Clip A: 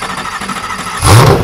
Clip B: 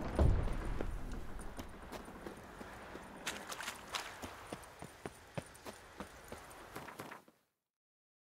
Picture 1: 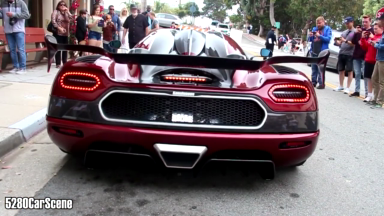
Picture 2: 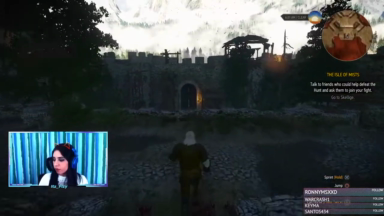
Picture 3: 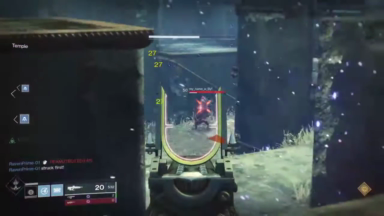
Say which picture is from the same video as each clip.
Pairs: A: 1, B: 2